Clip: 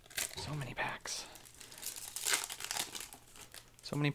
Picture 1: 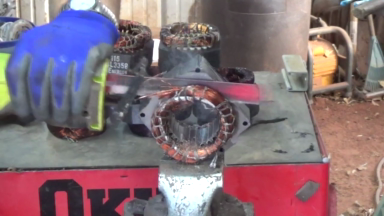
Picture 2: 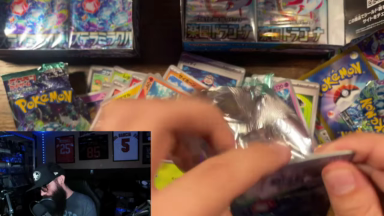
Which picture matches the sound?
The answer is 2